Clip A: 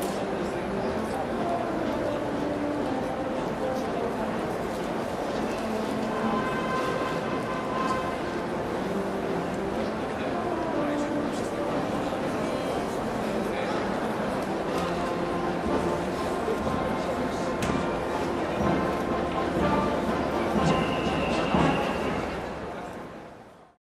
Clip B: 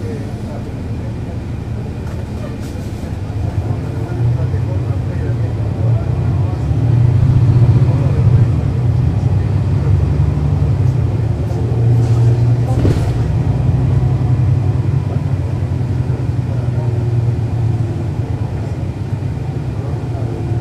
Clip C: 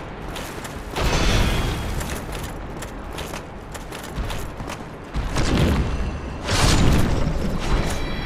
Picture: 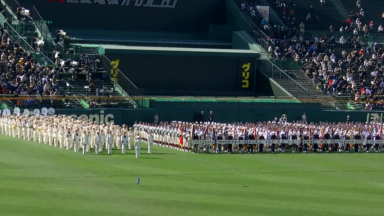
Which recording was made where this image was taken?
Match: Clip A